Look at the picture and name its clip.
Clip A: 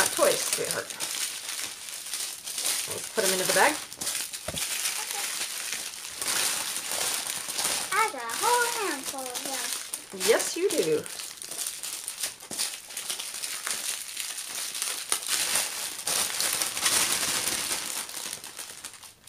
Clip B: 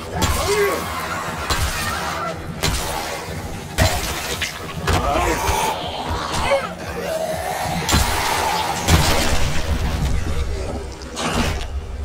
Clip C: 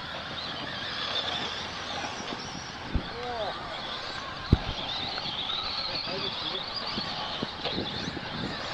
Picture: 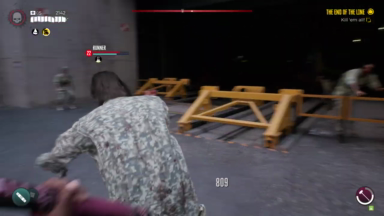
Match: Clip B